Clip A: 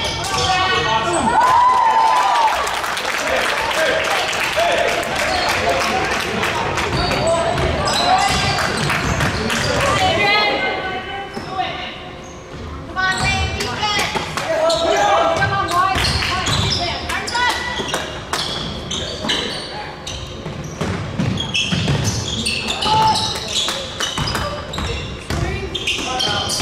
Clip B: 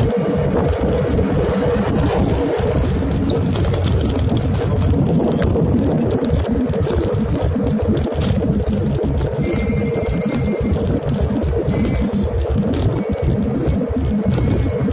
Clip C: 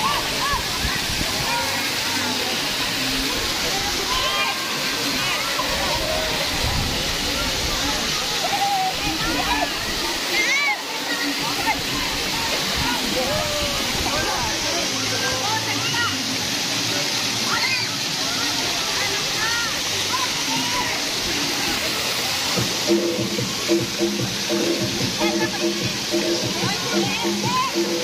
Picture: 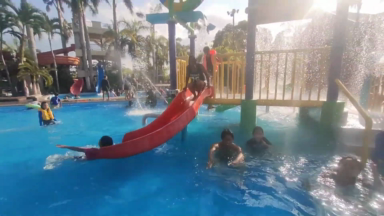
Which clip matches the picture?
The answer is C